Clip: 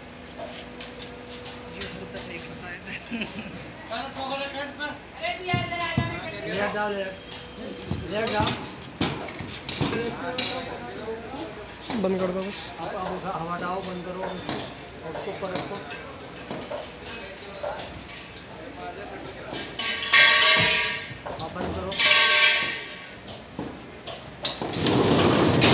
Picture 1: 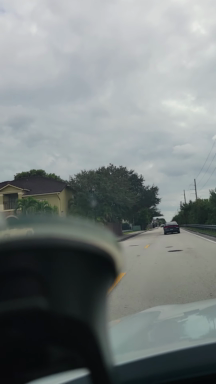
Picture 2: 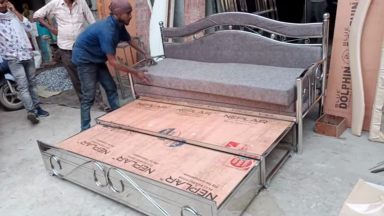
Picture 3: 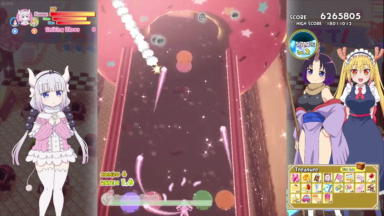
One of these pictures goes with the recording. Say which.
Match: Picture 2